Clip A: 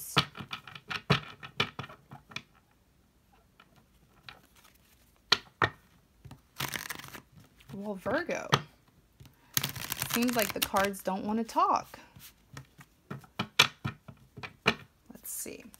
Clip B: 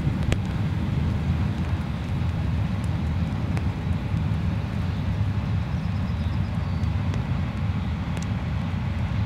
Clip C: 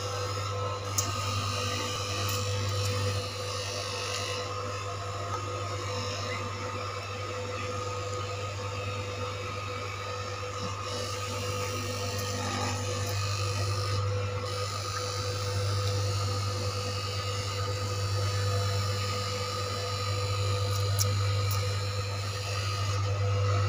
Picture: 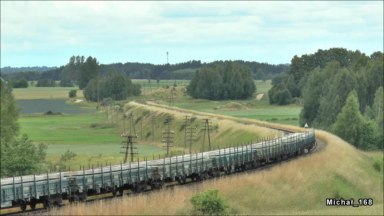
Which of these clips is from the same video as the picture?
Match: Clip B